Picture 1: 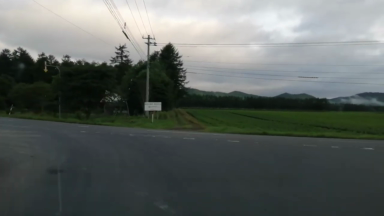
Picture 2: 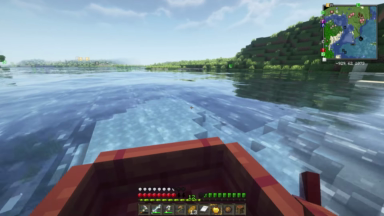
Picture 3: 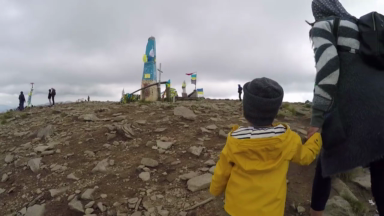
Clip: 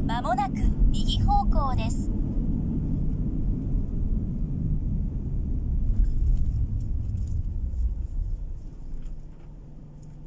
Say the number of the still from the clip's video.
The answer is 1